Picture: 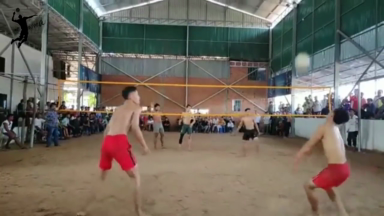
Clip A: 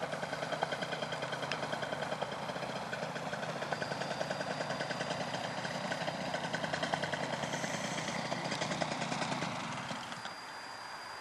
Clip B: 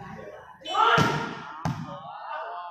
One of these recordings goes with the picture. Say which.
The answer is B